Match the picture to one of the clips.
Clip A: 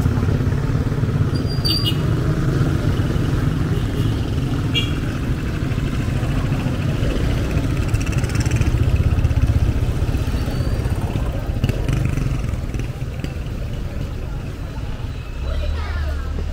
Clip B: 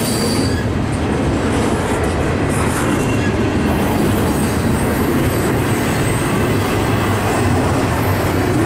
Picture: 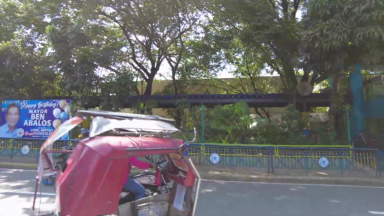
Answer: A